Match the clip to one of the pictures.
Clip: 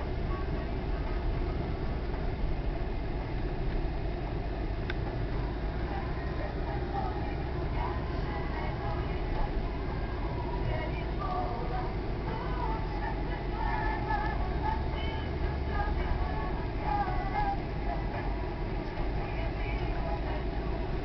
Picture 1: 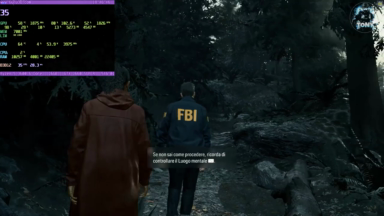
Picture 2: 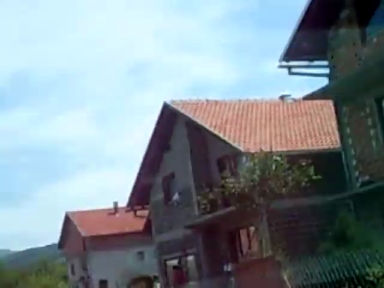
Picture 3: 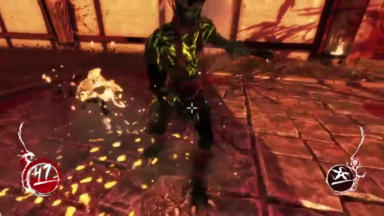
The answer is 2